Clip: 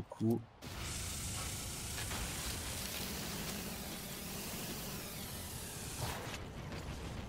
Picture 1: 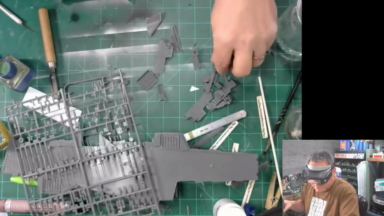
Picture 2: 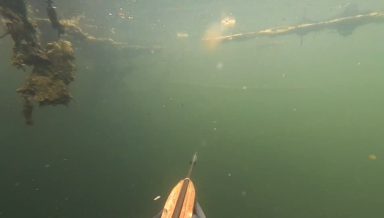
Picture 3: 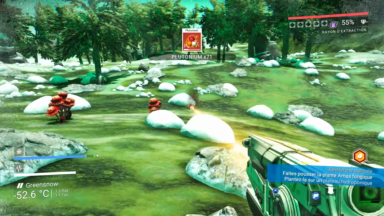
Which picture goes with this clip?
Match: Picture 3